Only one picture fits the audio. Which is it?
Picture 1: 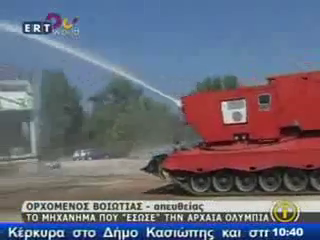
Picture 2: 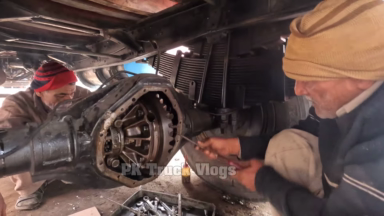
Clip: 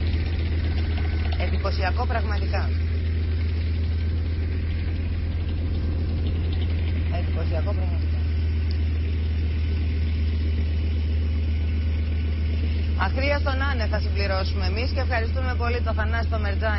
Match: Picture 1